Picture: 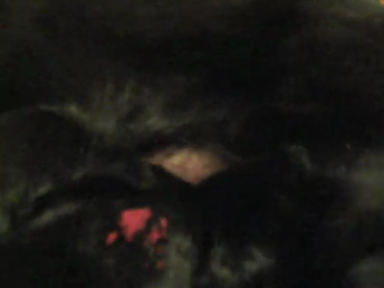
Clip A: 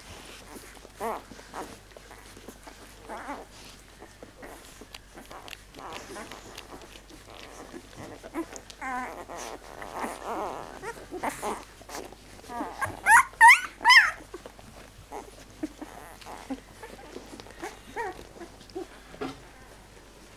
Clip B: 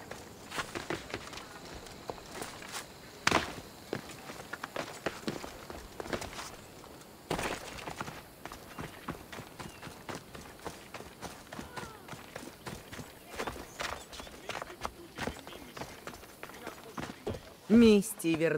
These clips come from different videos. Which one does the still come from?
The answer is A